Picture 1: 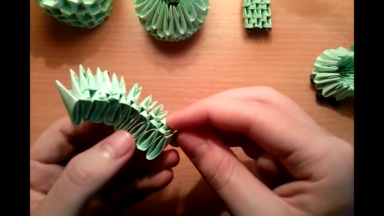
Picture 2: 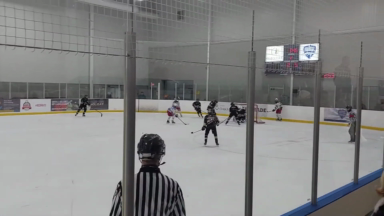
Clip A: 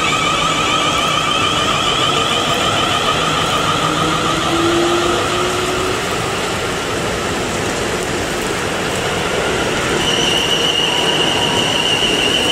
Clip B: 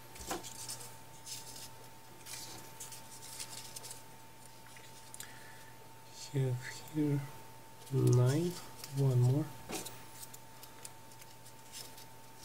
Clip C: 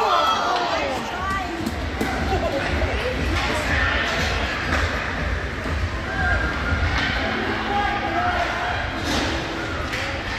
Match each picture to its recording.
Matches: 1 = B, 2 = C